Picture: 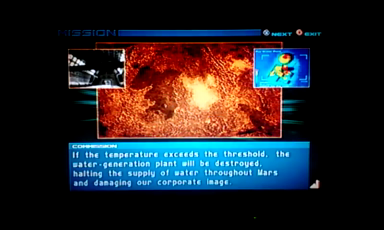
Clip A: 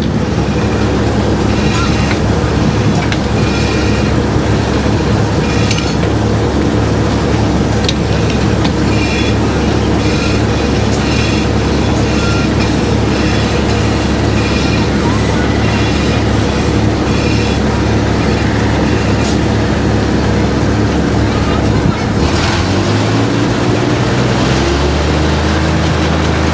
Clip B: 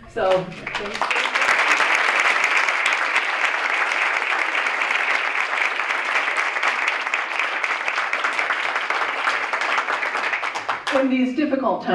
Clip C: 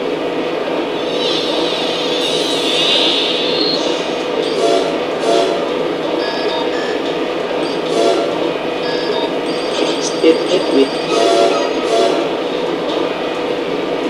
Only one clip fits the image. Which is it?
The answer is C